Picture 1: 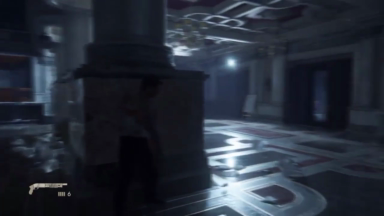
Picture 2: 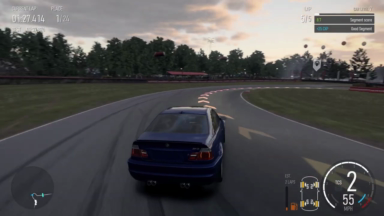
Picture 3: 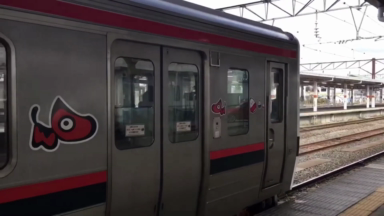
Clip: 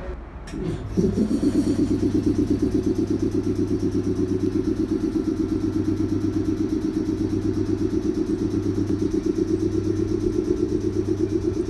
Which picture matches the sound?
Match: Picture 3